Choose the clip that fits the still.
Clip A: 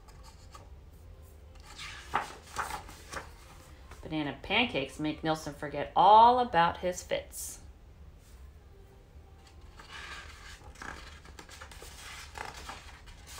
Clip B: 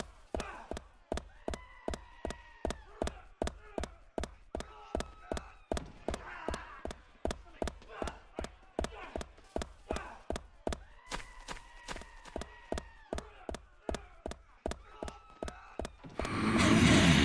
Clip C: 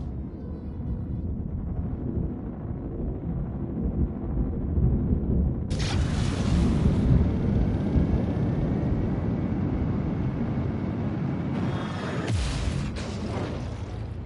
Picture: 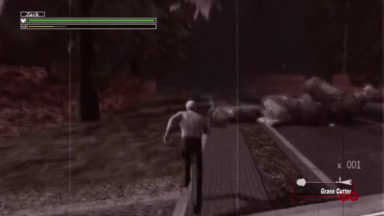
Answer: B